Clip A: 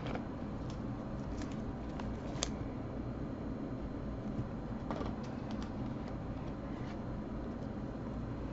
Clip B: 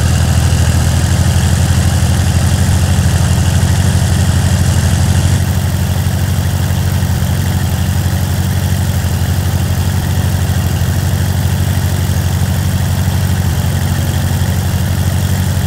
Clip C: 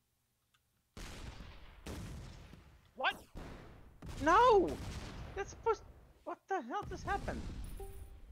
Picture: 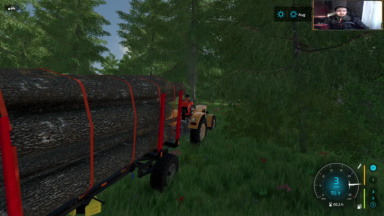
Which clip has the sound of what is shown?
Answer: B